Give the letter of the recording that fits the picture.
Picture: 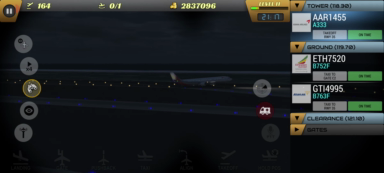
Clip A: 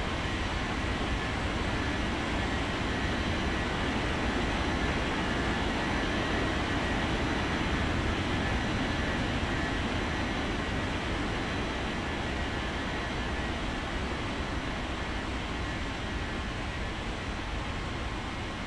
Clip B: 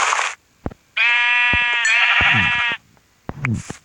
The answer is A